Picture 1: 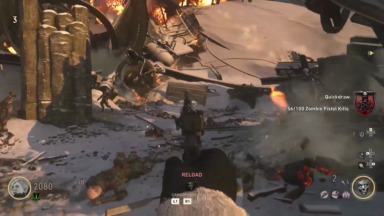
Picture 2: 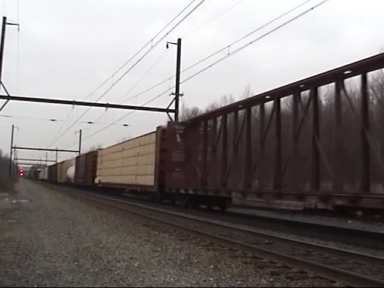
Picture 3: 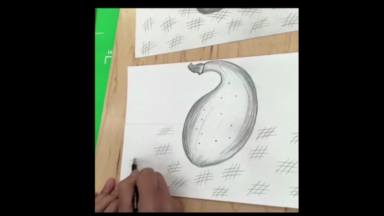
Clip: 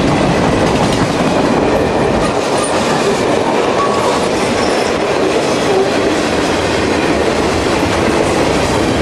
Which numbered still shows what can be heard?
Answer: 2